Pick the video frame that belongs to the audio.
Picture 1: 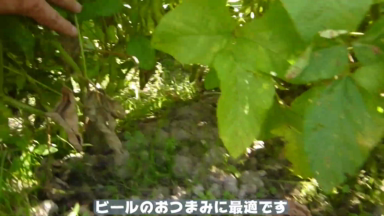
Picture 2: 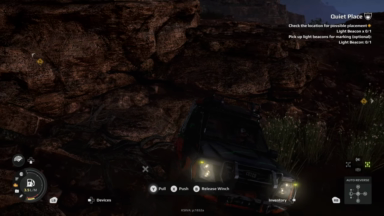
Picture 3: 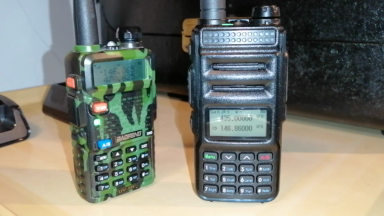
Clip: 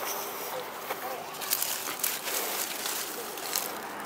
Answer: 1